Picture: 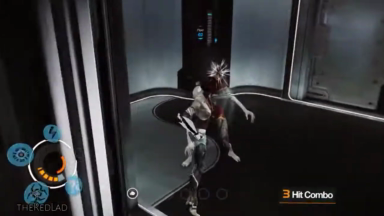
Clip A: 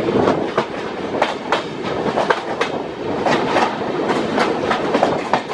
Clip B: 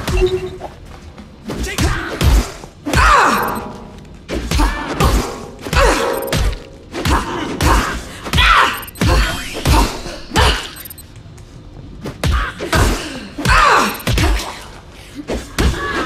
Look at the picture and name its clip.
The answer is B